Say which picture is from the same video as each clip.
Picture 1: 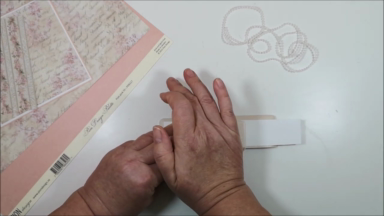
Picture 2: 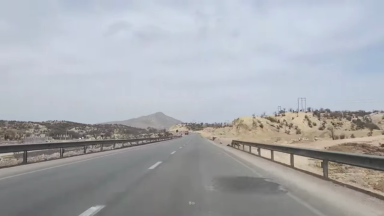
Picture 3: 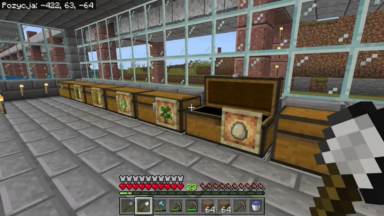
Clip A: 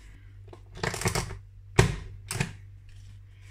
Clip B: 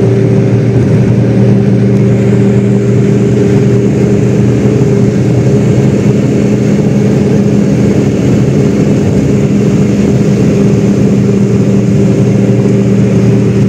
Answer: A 1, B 2